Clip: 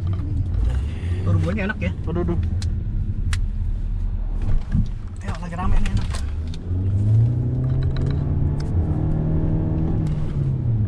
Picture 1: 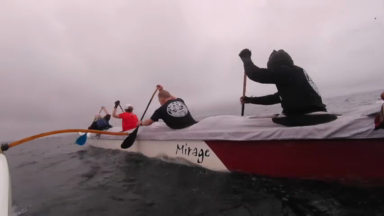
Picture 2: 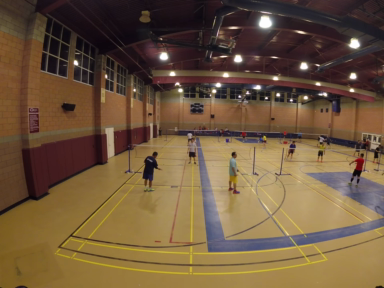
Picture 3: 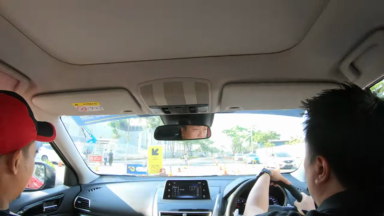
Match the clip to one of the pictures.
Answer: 3